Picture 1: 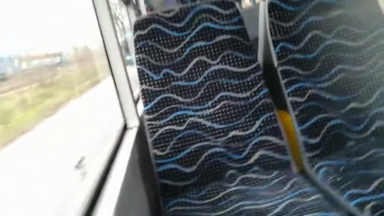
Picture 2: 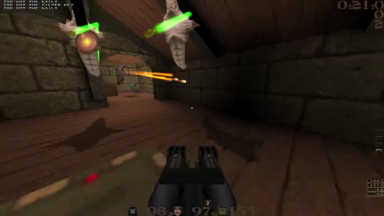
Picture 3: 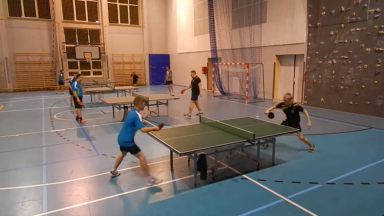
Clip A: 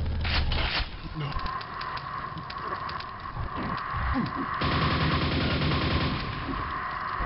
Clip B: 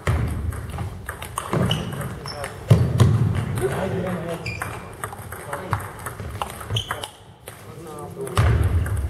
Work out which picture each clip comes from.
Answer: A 2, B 3